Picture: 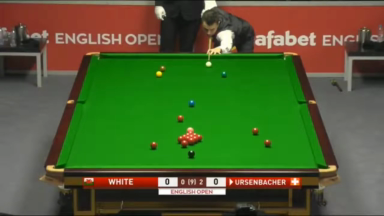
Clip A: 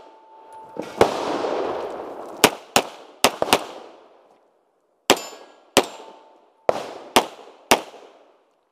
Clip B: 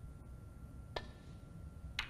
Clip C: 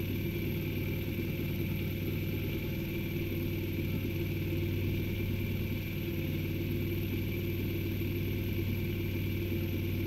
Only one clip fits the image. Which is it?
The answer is B